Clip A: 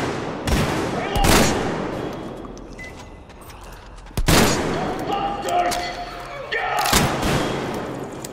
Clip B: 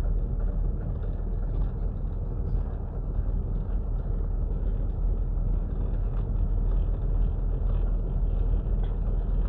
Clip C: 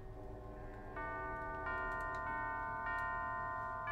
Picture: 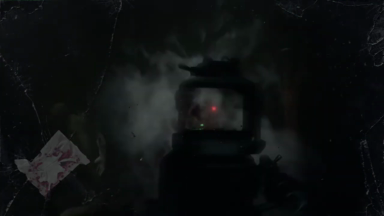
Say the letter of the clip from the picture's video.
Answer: A